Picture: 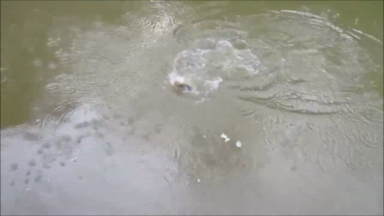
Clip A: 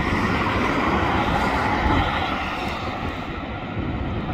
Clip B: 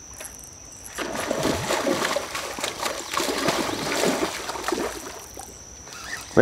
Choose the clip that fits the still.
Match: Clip B